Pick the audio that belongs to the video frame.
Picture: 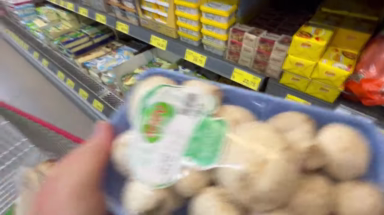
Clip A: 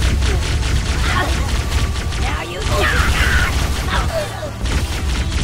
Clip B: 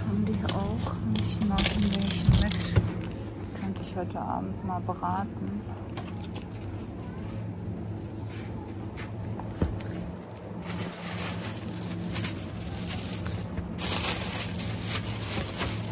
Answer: B